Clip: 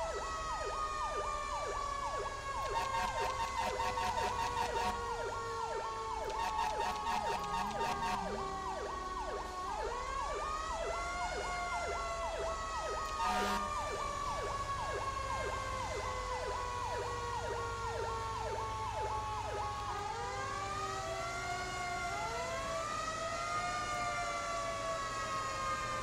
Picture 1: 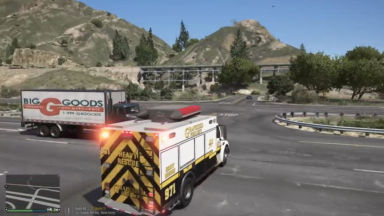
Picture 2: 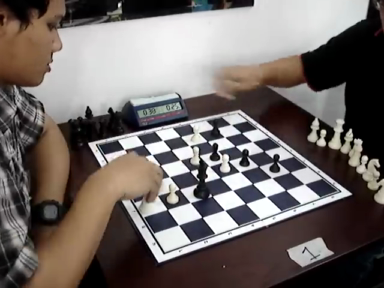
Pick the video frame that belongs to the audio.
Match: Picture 1